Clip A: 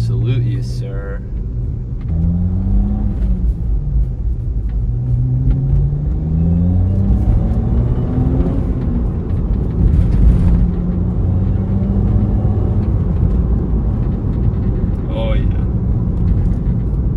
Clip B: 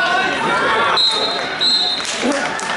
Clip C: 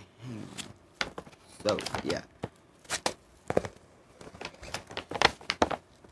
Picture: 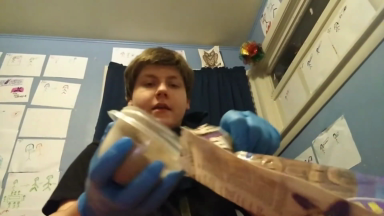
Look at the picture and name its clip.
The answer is C